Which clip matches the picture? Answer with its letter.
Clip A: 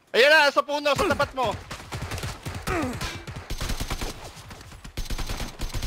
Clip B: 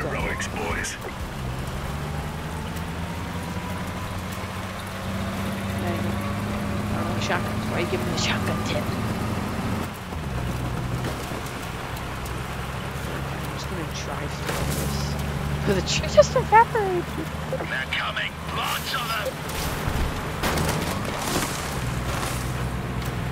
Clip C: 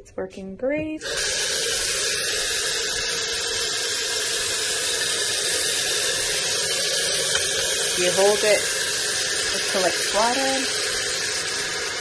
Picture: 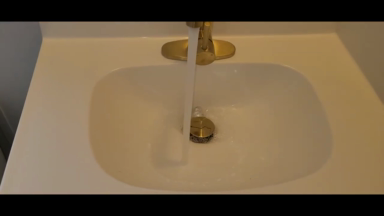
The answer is C